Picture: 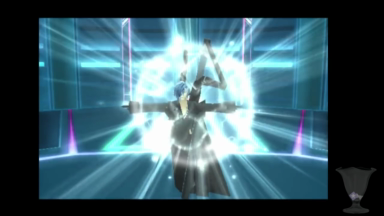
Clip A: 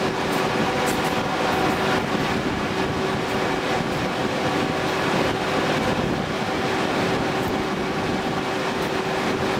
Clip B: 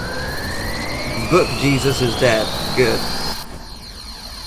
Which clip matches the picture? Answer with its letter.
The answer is B